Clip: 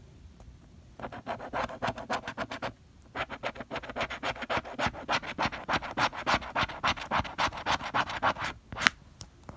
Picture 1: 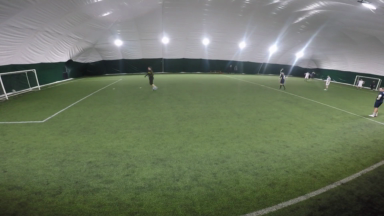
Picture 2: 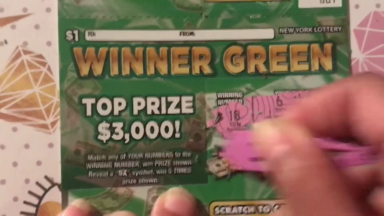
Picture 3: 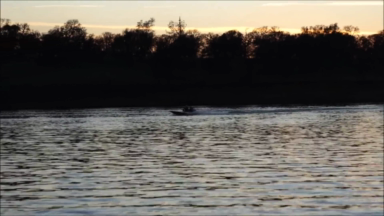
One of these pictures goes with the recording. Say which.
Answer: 2